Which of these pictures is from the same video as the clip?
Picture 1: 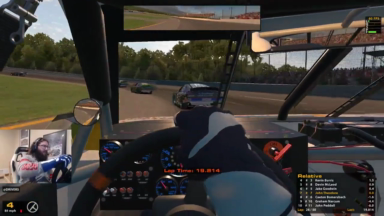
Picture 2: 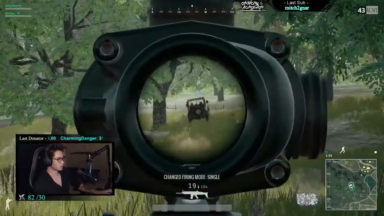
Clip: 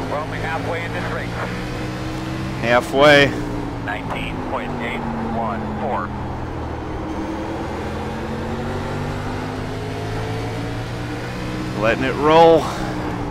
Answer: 1